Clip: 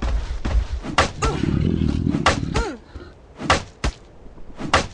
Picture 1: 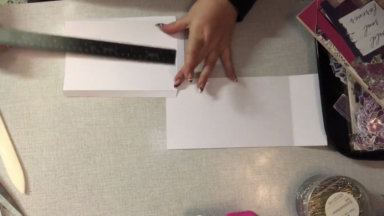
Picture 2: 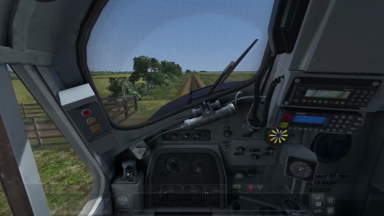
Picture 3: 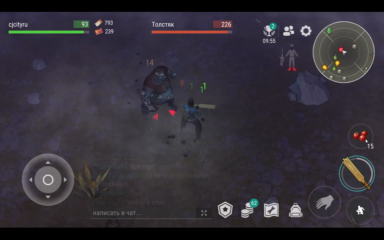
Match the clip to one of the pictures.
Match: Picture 3